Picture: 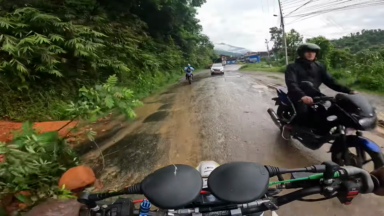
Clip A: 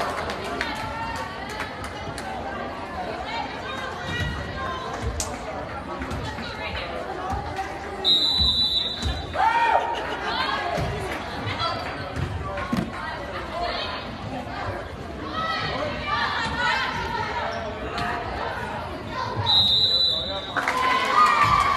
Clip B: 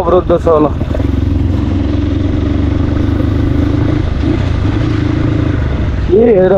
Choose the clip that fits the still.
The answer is B